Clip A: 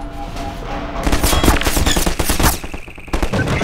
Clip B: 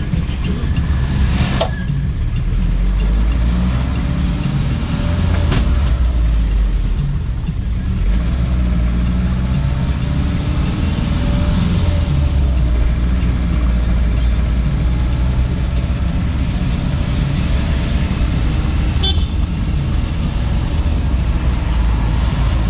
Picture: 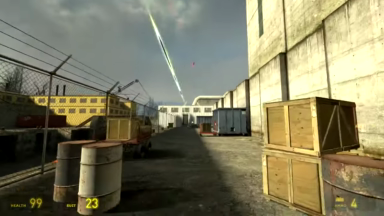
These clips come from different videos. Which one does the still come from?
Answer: A